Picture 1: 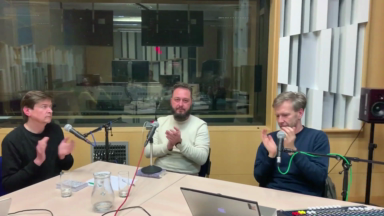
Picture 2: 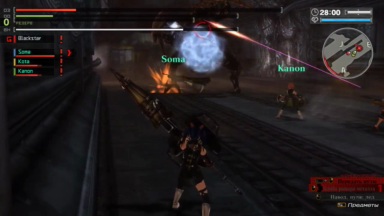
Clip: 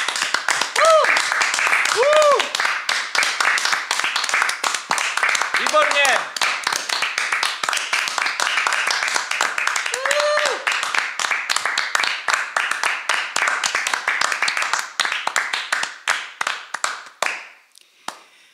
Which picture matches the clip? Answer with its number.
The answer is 1